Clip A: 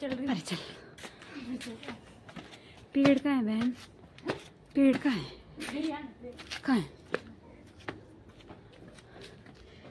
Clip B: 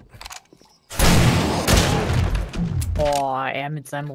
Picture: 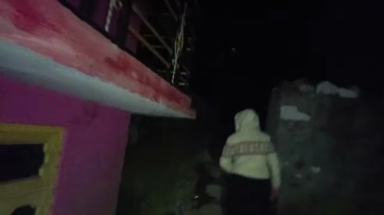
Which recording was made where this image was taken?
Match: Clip A